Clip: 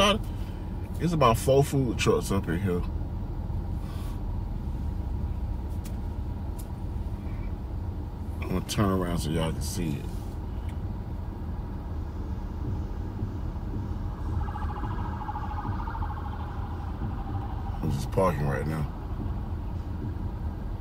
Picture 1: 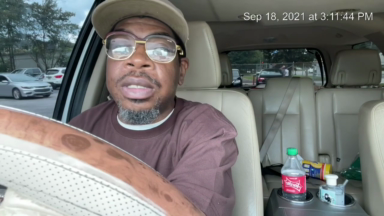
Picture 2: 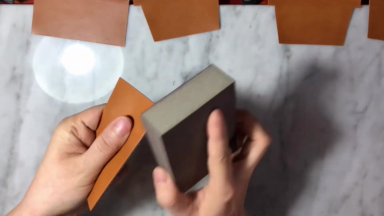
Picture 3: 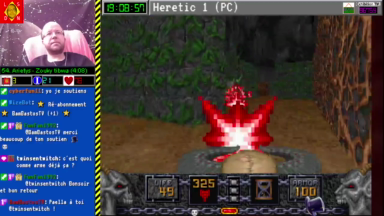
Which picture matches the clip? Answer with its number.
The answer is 1